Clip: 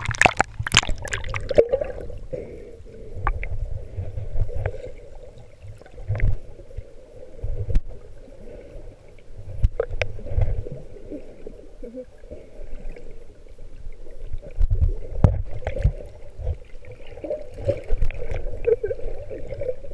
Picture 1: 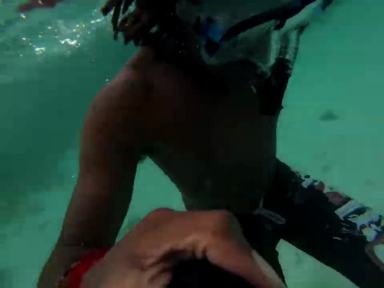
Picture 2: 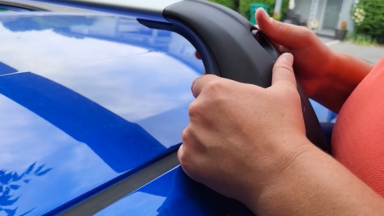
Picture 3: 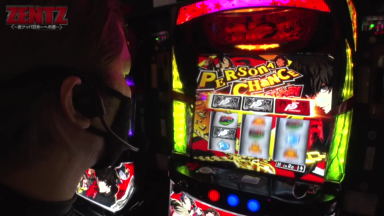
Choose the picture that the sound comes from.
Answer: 1